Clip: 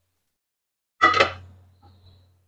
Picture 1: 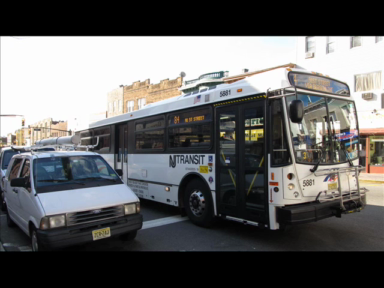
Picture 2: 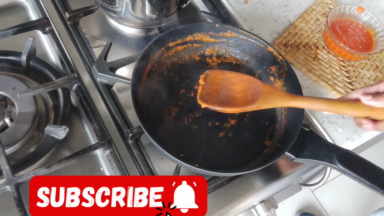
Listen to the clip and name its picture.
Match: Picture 2